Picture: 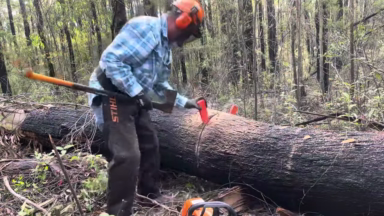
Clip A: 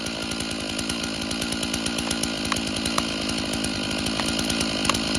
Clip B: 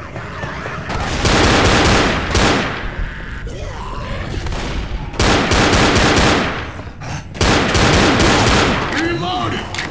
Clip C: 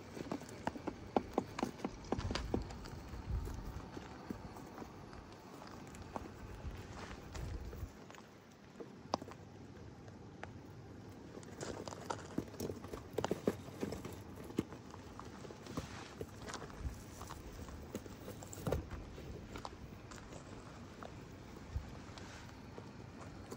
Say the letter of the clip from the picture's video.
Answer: A